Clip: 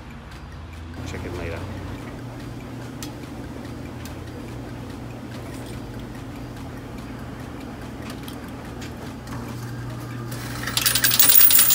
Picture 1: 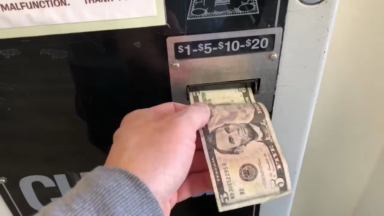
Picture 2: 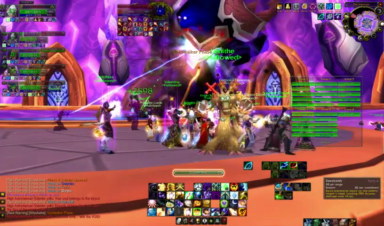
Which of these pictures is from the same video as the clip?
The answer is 1